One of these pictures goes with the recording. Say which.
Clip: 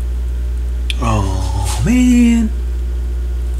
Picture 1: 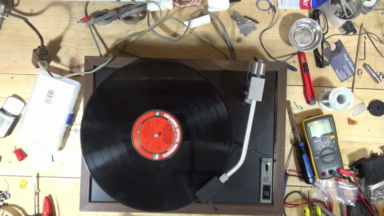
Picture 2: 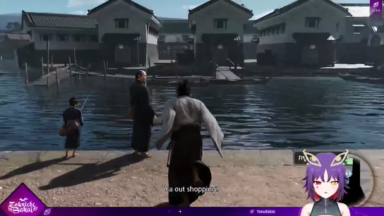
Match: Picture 1